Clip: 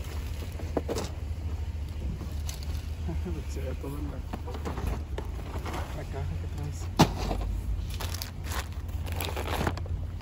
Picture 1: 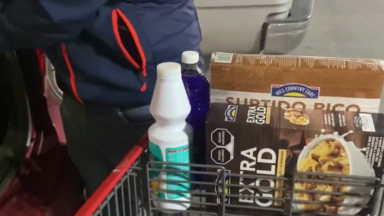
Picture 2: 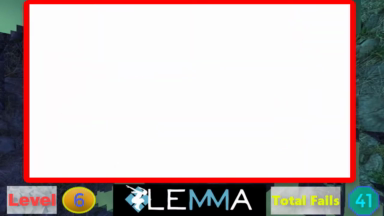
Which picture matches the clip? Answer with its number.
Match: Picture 1